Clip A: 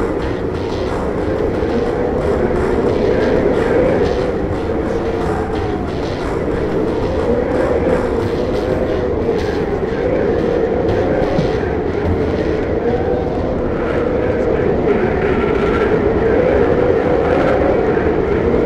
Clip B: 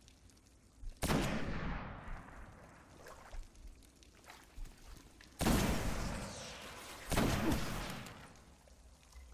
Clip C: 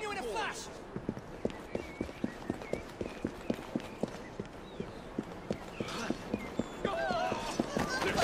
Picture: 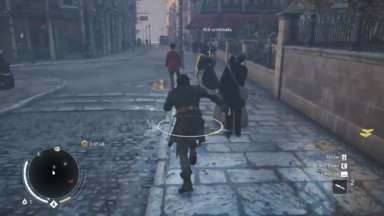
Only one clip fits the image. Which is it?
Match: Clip C